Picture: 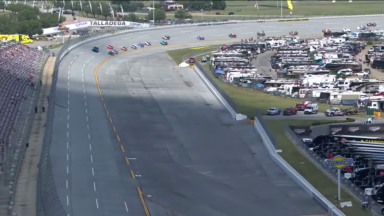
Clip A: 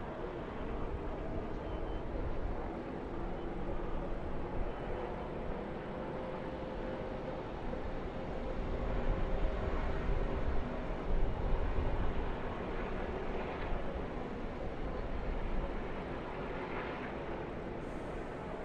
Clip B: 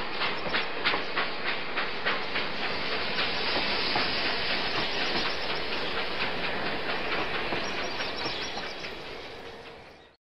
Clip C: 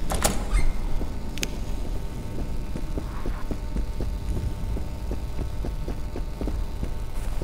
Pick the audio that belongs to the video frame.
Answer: A